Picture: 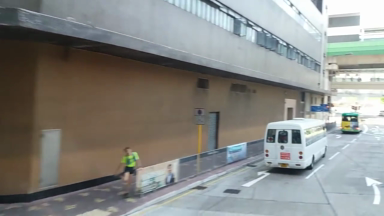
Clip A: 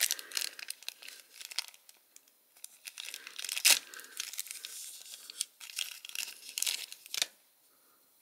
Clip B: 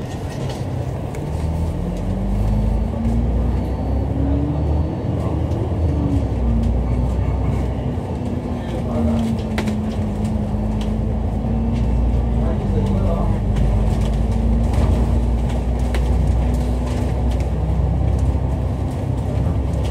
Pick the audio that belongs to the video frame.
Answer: B